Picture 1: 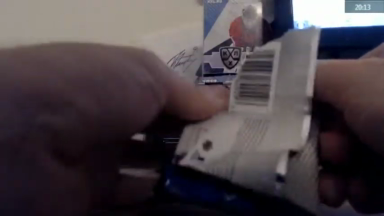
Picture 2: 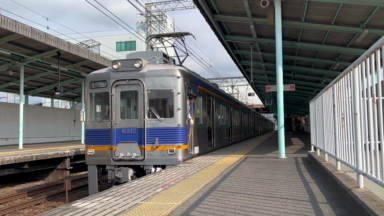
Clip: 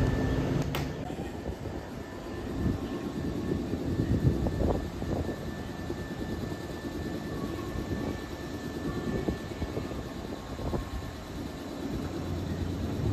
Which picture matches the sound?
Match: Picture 2